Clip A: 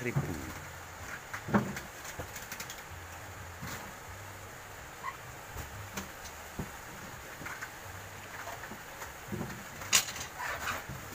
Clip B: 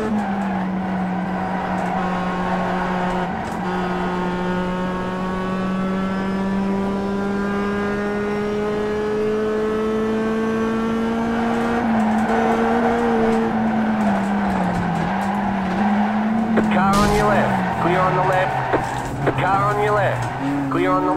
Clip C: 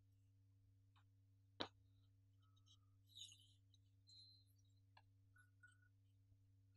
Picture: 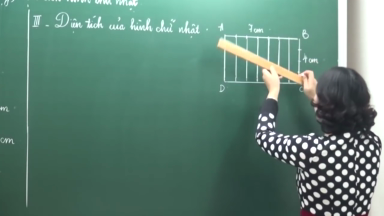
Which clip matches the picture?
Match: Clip C